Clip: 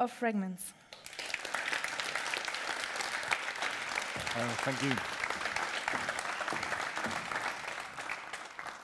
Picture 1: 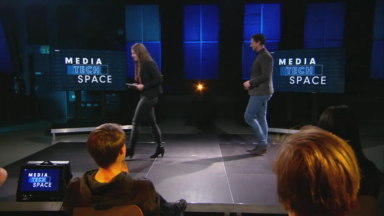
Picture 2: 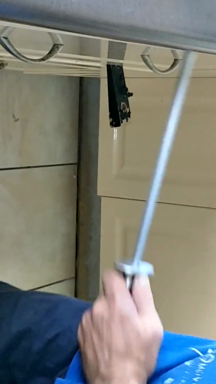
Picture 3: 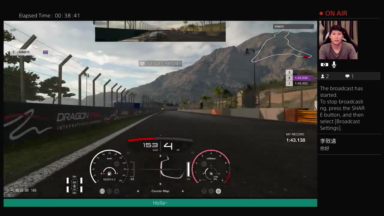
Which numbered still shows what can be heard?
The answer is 1